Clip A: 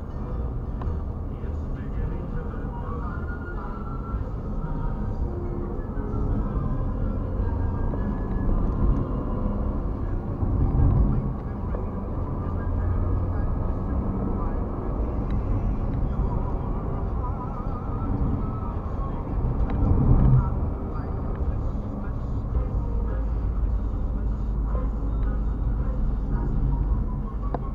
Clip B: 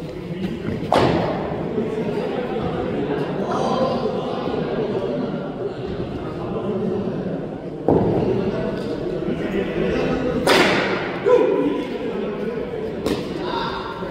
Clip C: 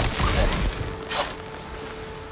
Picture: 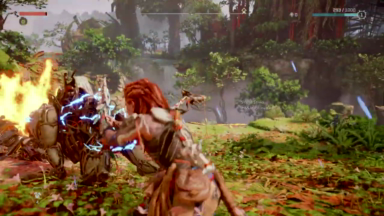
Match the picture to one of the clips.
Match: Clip C